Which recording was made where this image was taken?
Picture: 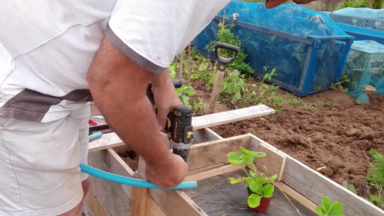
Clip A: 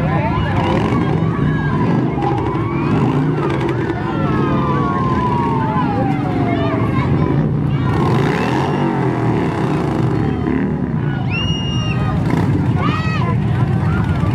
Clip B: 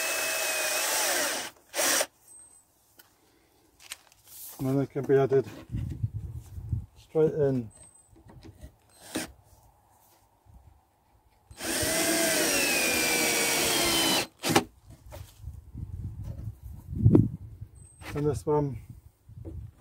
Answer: B